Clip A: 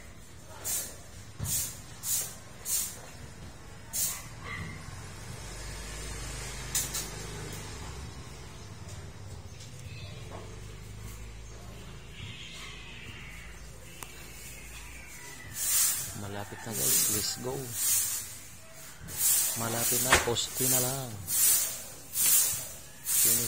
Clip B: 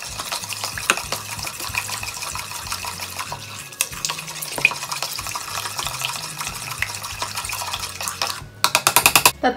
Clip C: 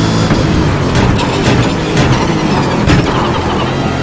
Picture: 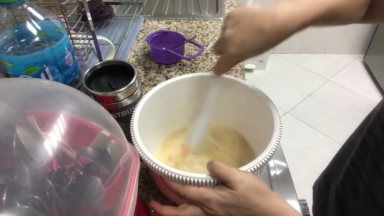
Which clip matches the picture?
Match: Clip B